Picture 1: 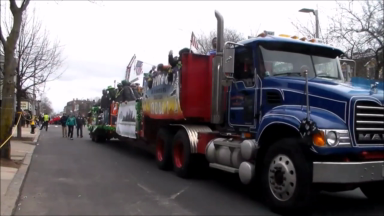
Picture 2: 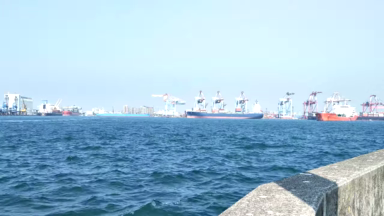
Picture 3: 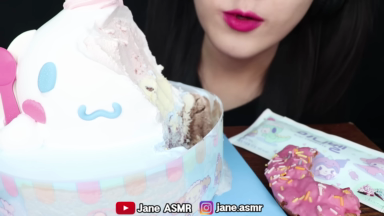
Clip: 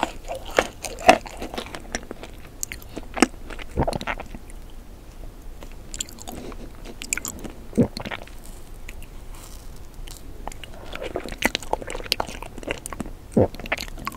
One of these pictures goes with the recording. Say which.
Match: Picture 3